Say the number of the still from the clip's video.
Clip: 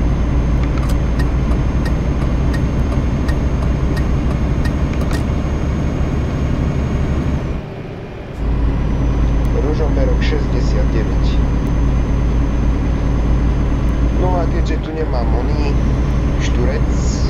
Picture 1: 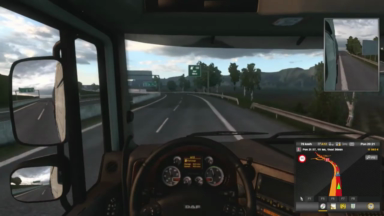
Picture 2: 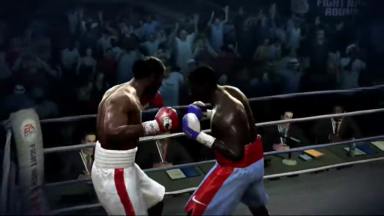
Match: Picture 1